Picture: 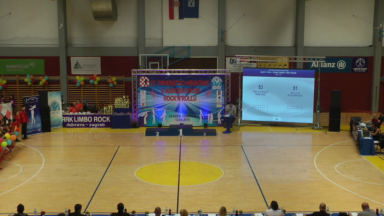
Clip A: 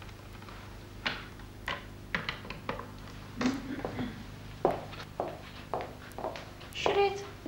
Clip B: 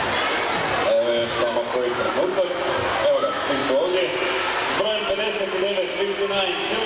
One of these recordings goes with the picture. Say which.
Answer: B